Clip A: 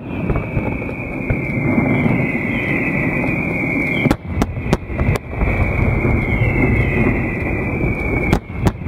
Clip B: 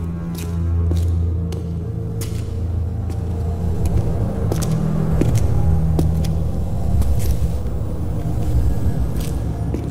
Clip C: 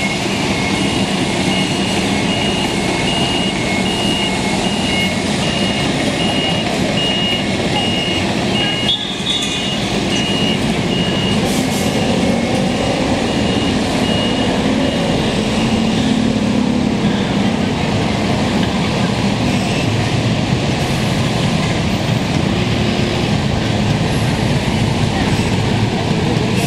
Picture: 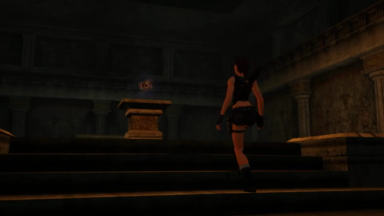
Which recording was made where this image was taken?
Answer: B